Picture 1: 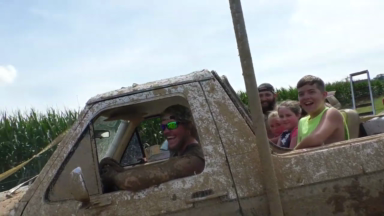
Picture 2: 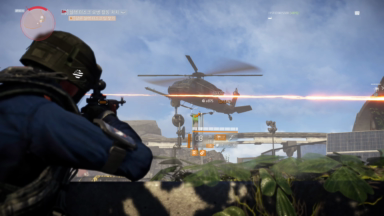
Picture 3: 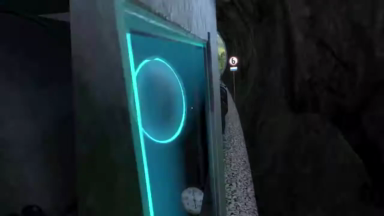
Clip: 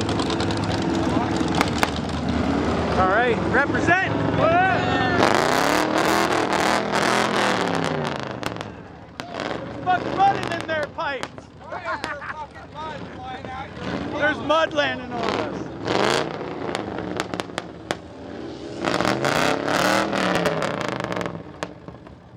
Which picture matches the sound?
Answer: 1